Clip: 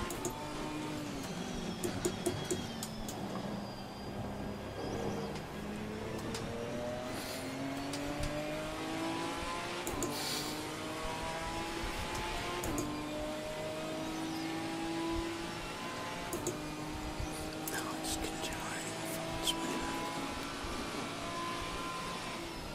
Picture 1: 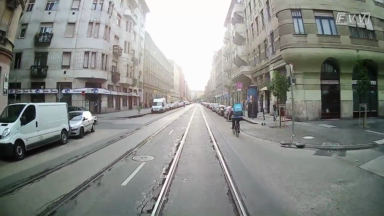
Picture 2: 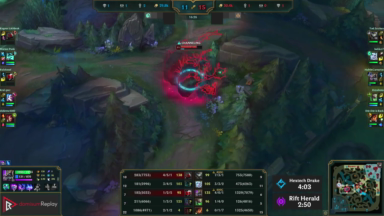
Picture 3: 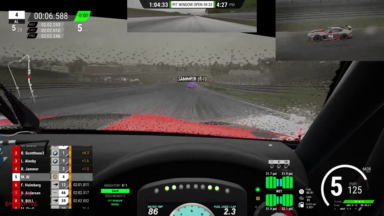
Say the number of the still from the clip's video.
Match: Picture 3